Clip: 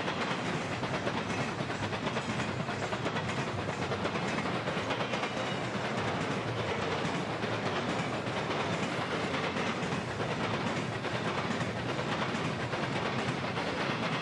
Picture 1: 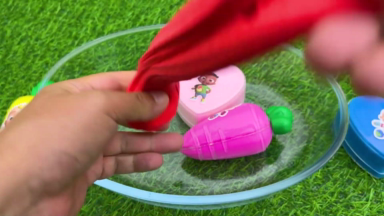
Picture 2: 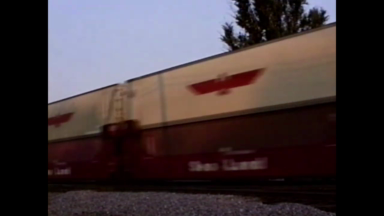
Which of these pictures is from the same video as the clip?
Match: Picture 2